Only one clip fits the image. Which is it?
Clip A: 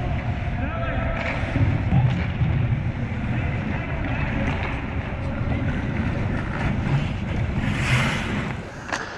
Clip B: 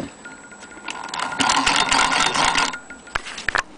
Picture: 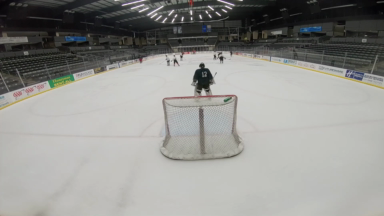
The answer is A